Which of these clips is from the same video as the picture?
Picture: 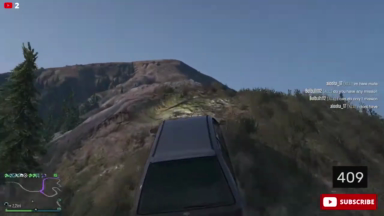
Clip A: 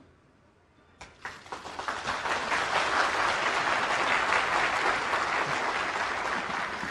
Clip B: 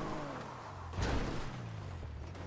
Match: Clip B